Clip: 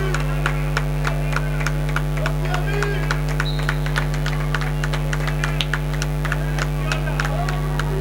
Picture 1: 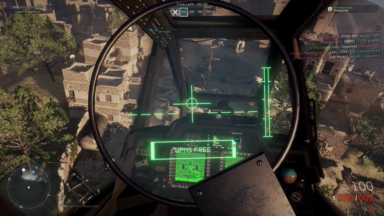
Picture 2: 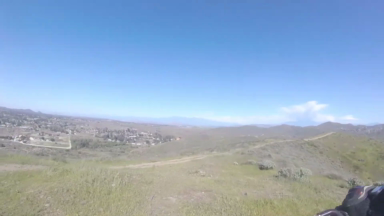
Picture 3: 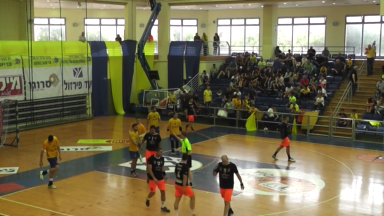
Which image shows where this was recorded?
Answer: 3